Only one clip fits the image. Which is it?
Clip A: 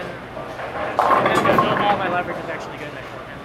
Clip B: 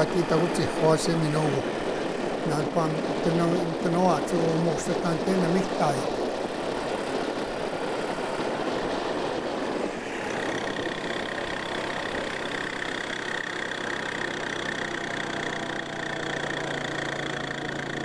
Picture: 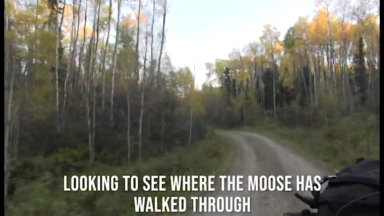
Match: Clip B